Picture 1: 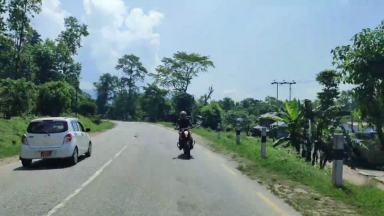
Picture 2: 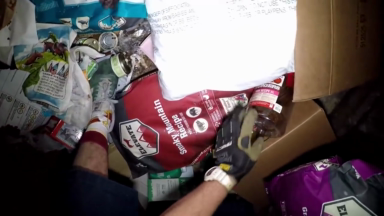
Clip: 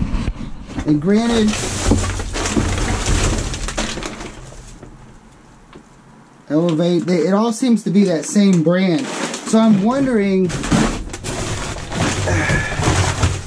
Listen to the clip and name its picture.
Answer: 2